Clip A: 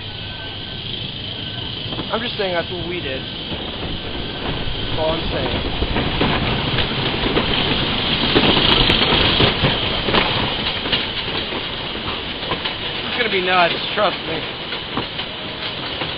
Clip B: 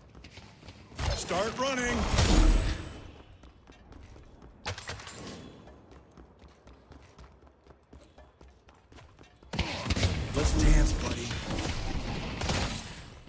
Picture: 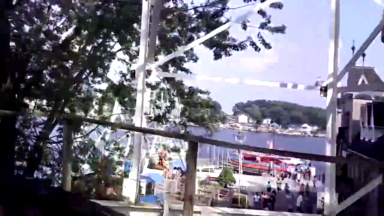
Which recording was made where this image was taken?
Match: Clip A